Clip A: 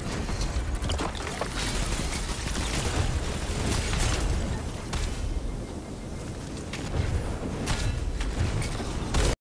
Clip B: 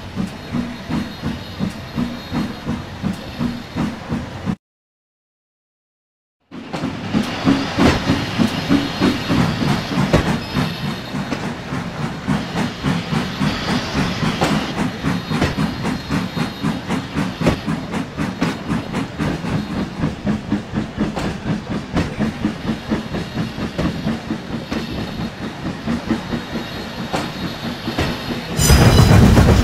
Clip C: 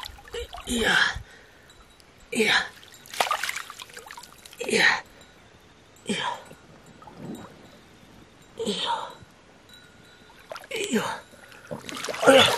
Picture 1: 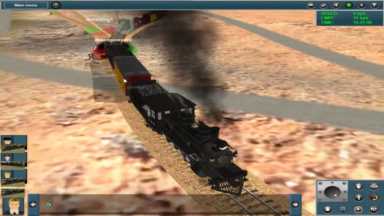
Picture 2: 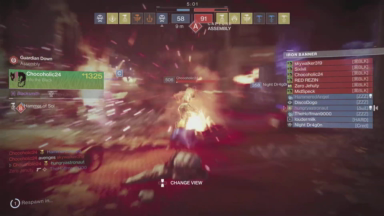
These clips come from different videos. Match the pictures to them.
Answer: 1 B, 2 A